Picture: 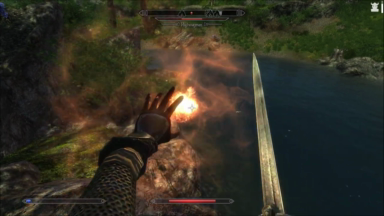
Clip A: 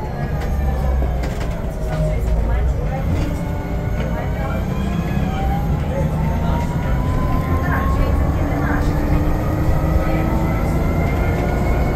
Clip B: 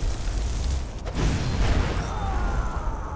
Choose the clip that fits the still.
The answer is B